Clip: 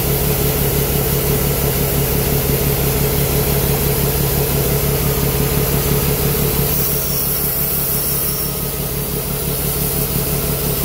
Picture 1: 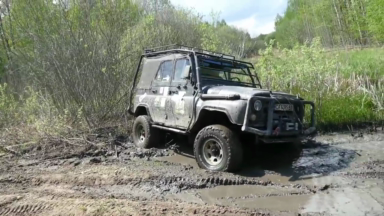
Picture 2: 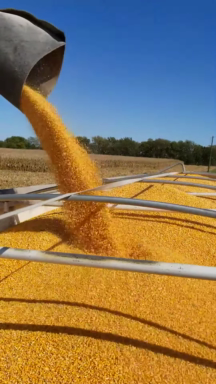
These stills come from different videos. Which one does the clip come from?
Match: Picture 2